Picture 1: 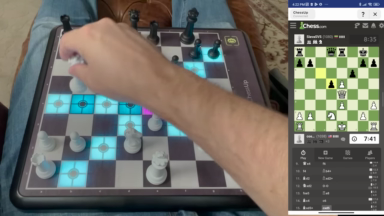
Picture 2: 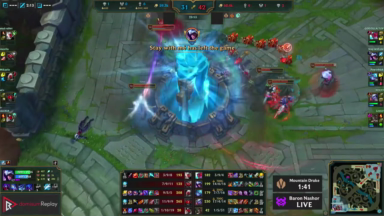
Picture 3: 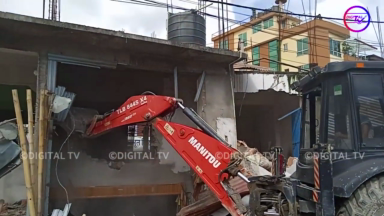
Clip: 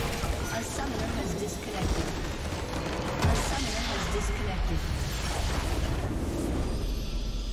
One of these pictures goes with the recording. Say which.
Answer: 2